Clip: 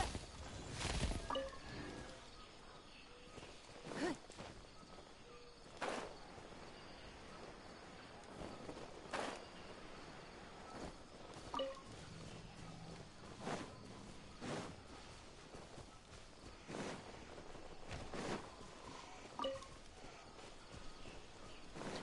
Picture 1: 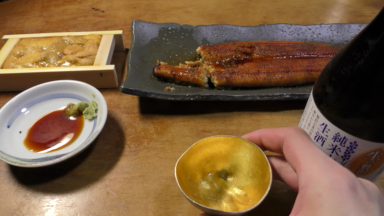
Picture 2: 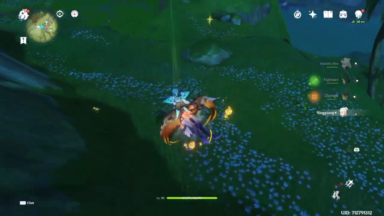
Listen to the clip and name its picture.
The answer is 2